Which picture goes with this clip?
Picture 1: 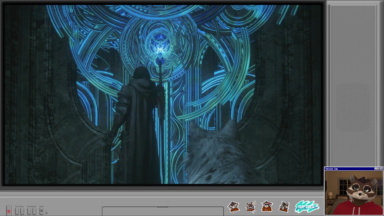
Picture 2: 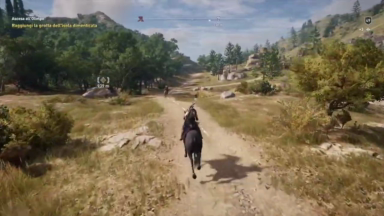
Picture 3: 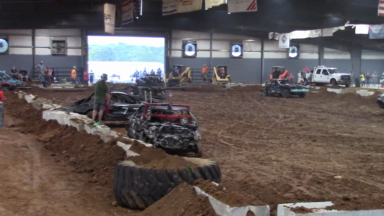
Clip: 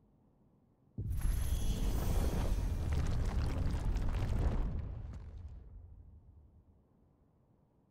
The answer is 1